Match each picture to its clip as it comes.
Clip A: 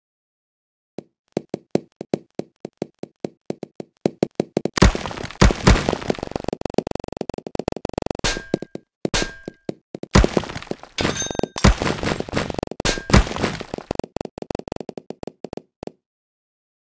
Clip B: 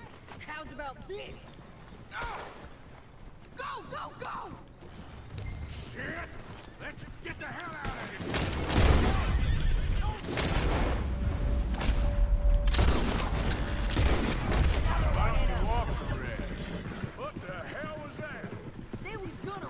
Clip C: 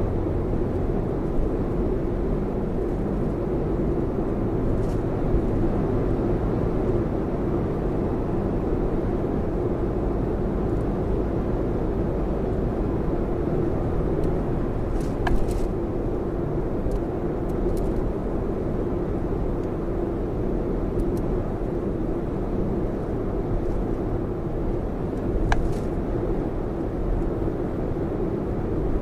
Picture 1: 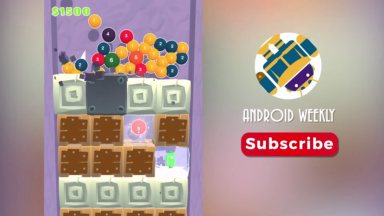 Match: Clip A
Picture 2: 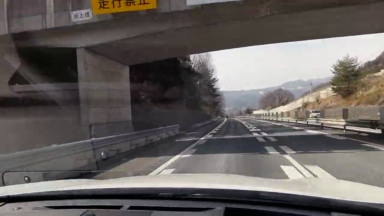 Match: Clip C